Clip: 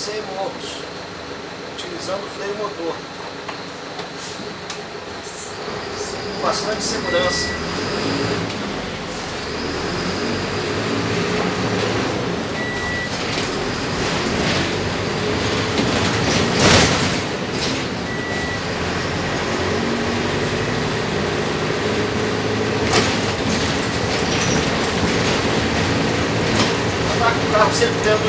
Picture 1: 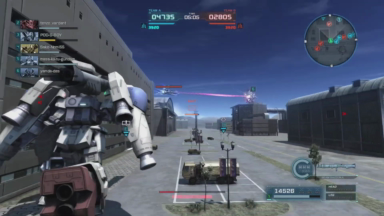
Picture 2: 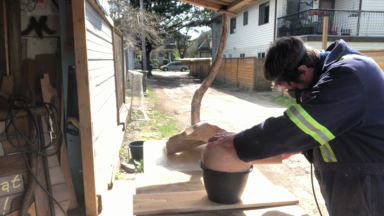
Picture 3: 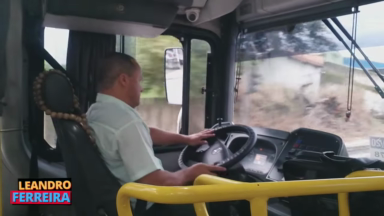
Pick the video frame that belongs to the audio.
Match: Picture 3